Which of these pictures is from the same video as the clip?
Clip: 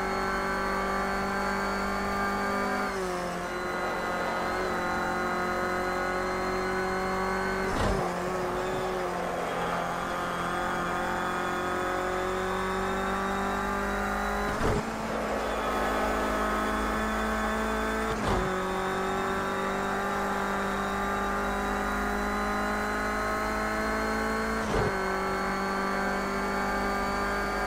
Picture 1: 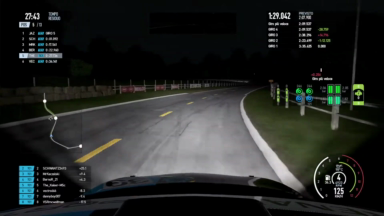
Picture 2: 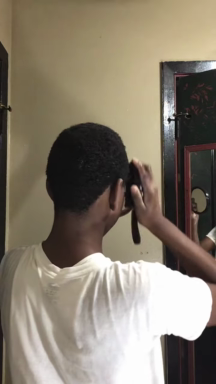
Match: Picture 1